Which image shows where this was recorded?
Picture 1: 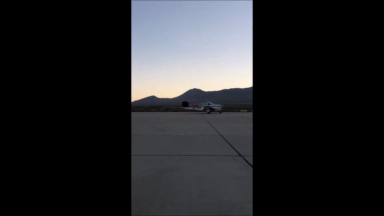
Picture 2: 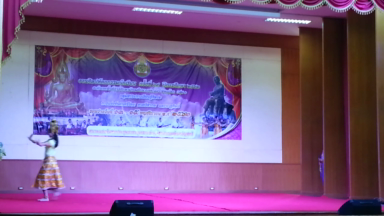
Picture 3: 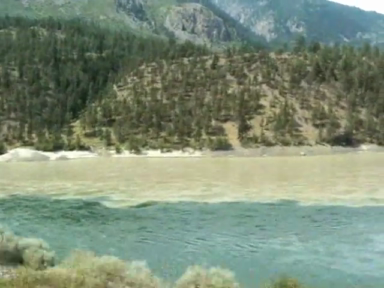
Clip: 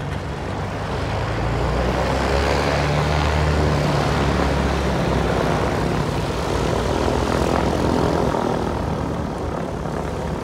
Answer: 1